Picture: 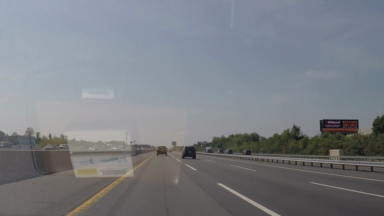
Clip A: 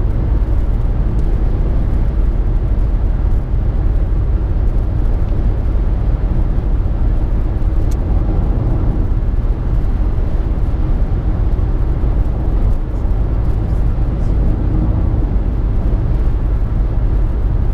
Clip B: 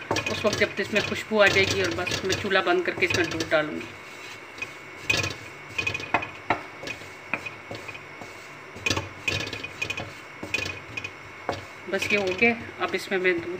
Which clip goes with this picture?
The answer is A